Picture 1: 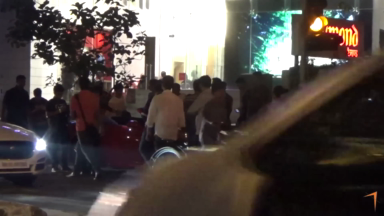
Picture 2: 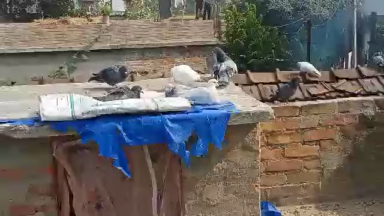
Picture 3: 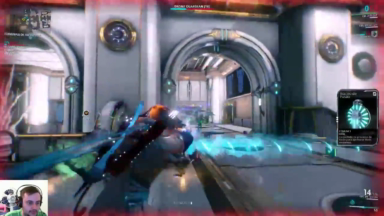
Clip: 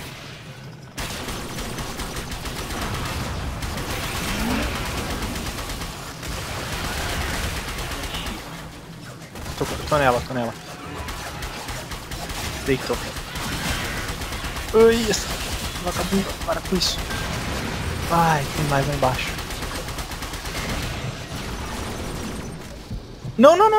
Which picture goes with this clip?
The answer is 3